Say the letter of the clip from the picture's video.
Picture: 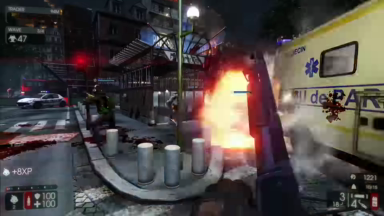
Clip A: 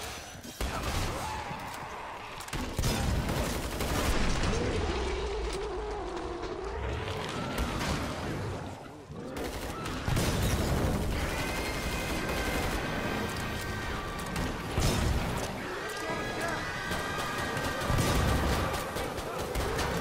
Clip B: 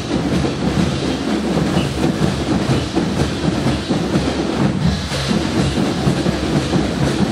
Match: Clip A